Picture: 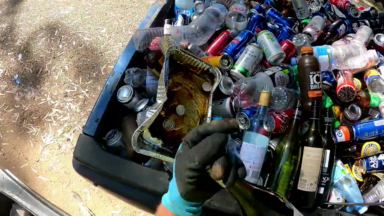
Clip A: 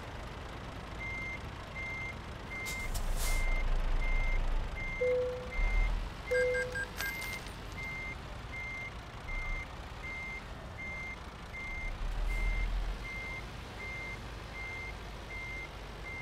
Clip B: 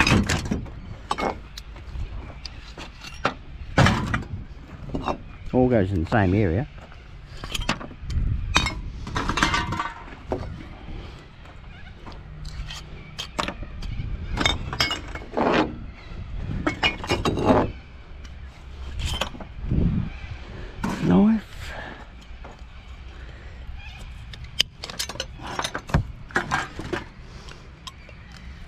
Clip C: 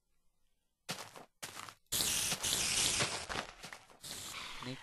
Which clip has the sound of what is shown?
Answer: B